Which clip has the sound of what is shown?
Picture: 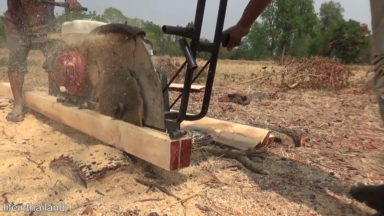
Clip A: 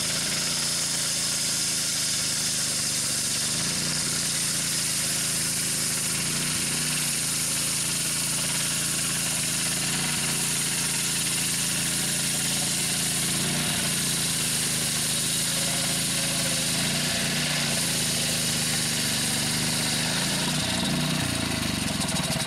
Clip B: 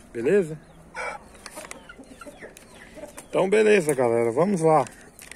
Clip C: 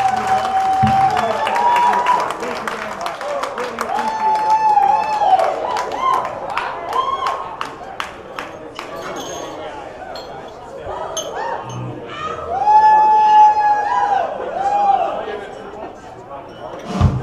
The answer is A